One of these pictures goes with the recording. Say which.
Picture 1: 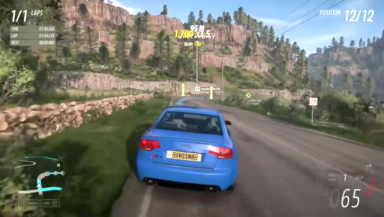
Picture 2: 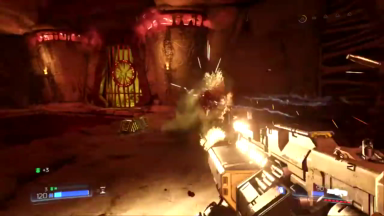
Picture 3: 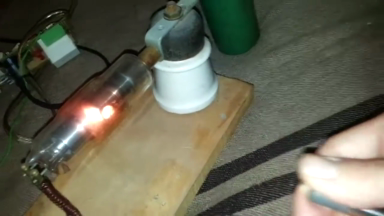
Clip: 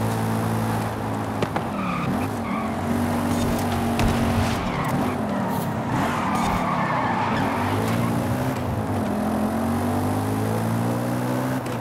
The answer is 1